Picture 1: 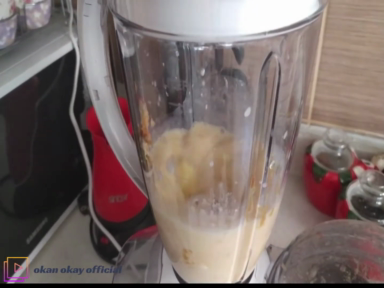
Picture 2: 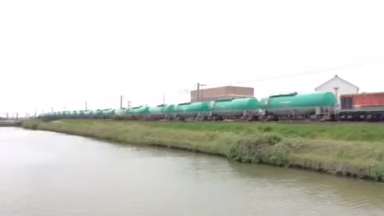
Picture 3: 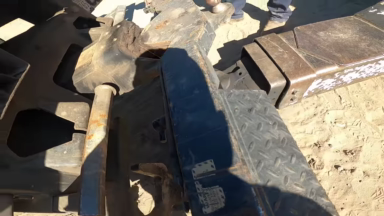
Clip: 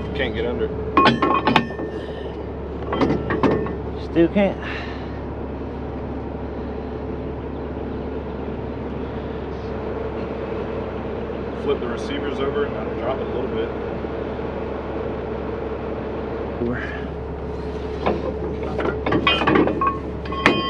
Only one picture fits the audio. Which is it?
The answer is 3